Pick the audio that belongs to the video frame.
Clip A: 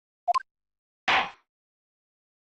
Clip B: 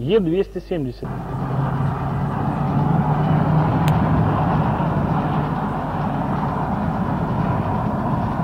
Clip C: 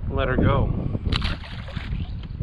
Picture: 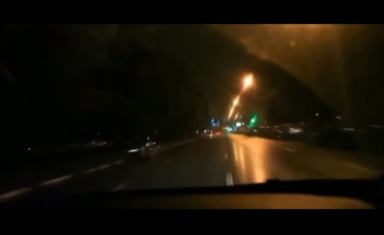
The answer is B